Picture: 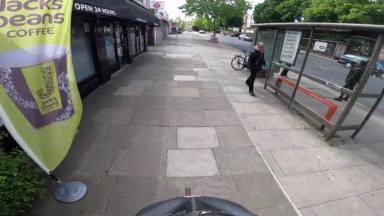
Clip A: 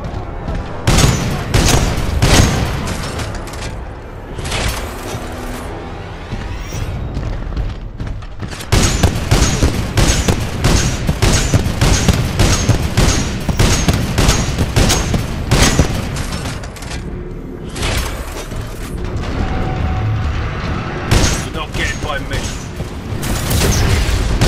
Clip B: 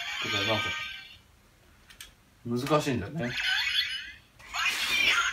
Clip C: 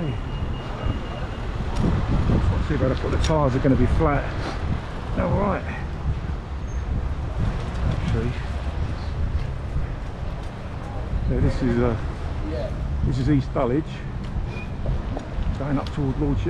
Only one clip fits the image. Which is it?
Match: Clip C